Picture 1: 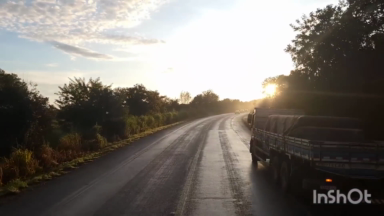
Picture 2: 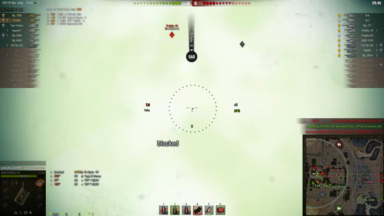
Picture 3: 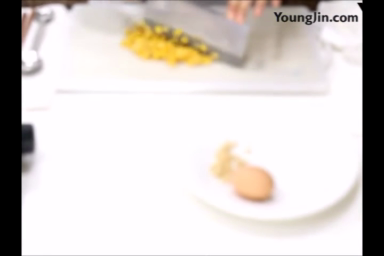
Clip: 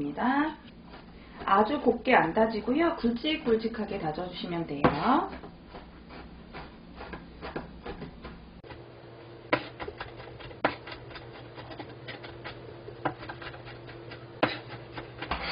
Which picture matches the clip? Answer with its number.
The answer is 3